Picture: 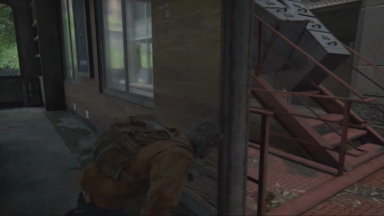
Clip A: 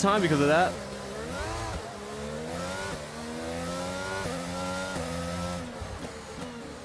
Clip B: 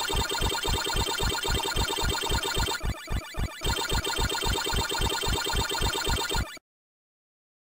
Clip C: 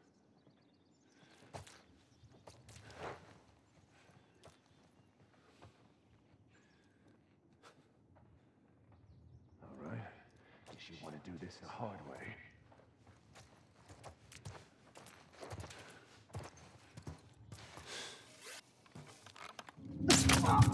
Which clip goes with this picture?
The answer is C